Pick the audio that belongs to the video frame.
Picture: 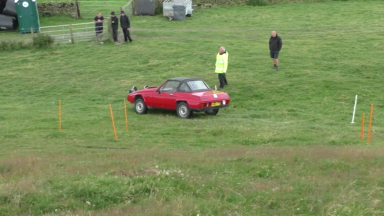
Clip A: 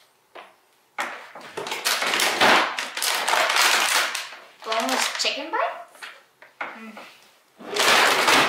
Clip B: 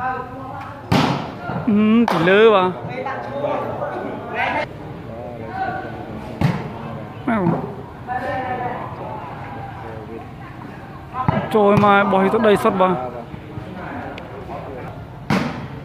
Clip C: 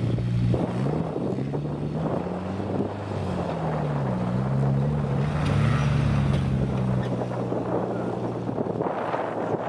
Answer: C